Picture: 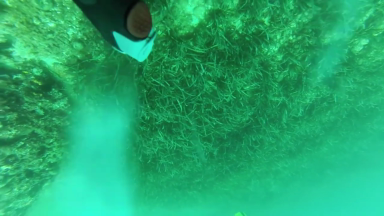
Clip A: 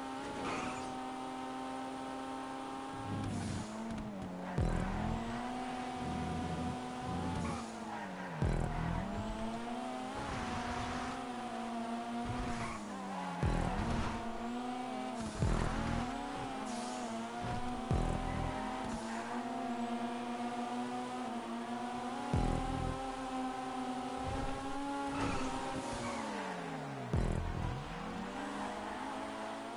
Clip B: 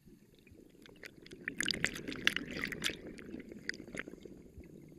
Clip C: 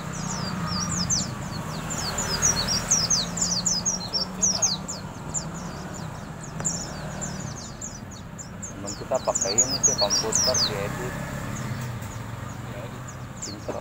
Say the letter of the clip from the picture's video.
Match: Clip B